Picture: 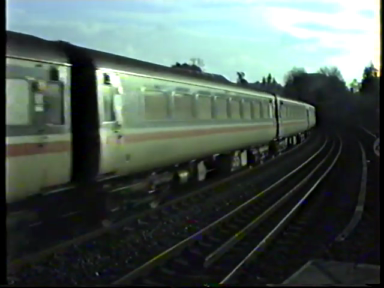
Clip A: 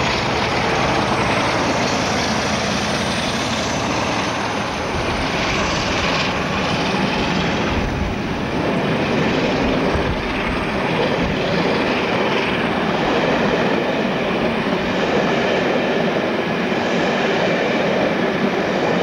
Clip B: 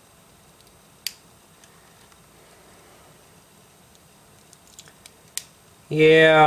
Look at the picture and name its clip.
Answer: A